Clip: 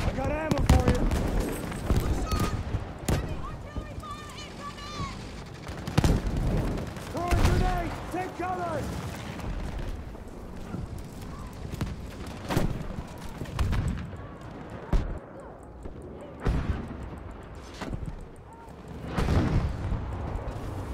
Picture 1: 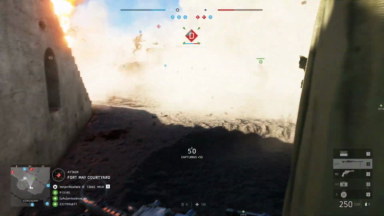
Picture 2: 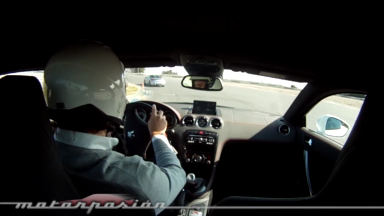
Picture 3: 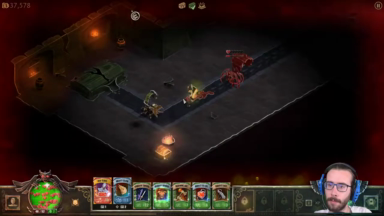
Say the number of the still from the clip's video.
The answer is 1